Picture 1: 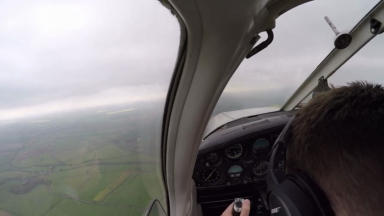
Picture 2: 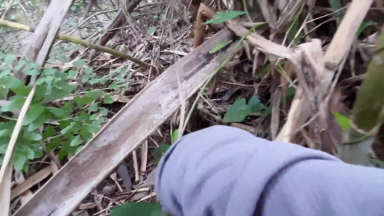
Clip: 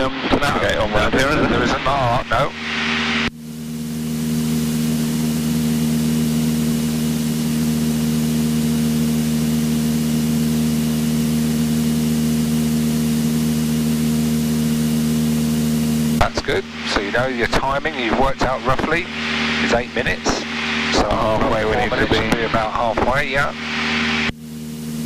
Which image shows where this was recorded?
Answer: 1